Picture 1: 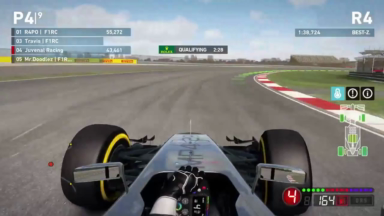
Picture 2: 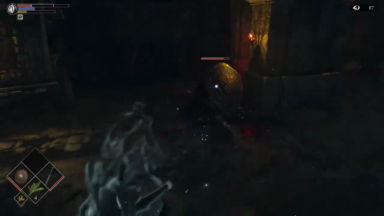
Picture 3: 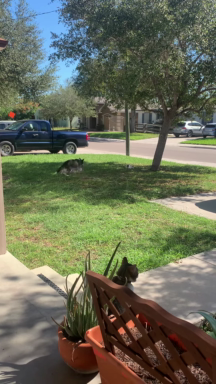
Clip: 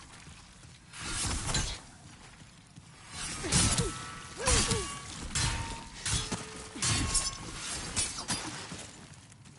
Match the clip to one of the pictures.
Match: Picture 2